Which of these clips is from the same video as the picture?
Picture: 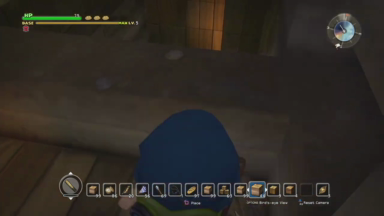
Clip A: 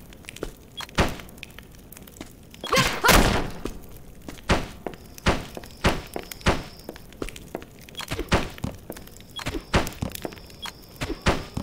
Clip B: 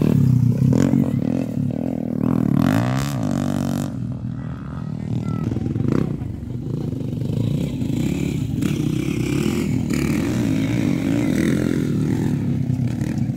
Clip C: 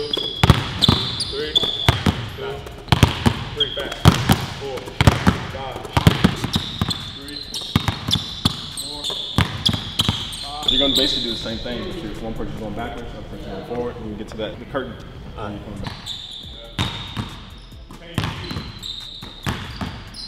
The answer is A